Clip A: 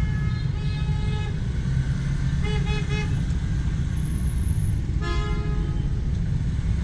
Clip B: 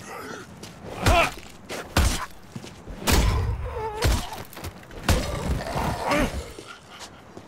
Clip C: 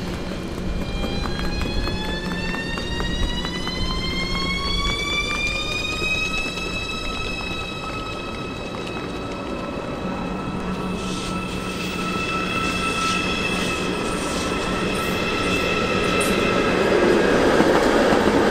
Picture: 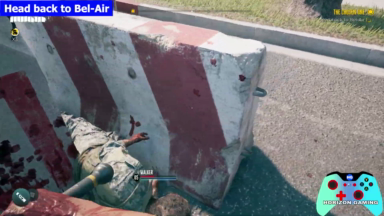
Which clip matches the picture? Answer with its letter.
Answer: B